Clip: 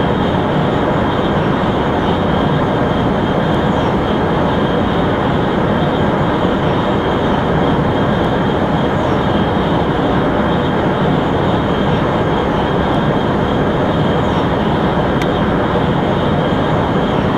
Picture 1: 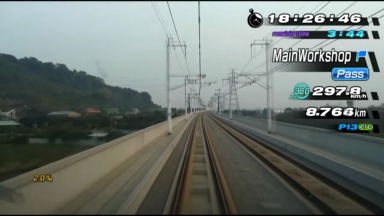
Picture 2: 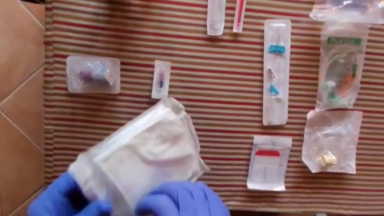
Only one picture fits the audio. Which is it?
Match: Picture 1